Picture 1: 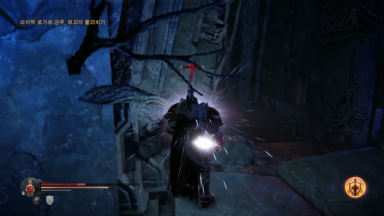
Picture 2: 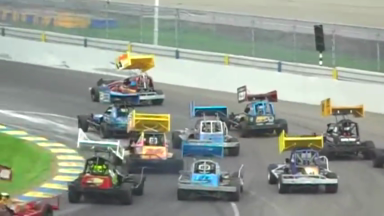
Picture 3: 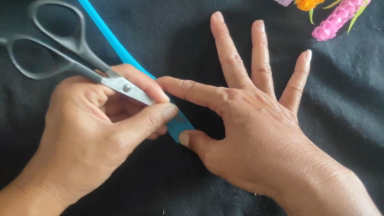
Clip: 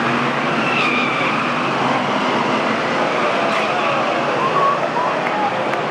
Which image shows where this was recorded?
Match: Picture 2